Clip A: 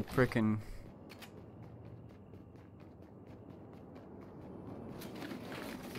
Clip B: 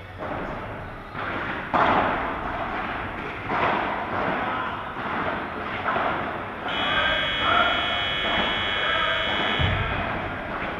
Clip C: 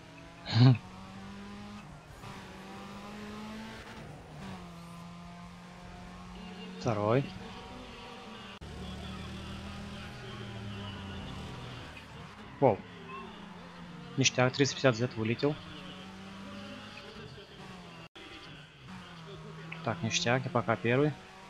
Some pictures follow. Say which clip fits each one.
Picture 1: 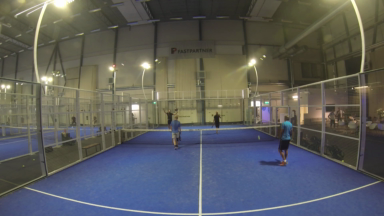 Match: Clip B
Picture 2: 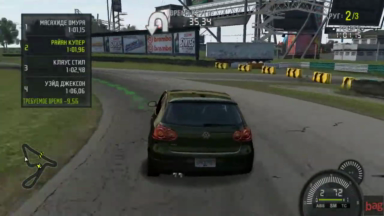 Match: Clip C